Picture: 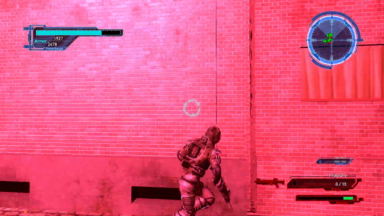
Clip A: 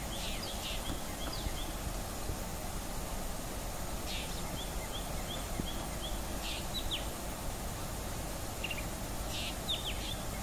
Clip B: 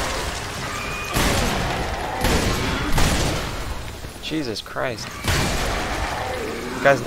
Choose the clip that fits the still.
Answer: B